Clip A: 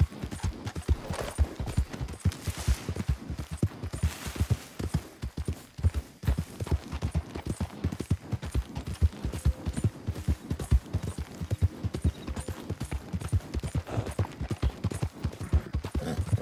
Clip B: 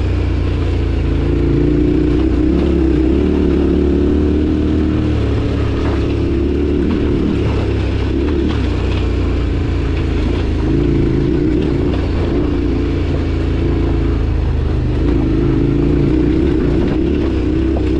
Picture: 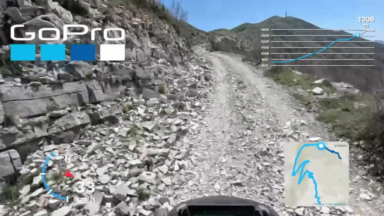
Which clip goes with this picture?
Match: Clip B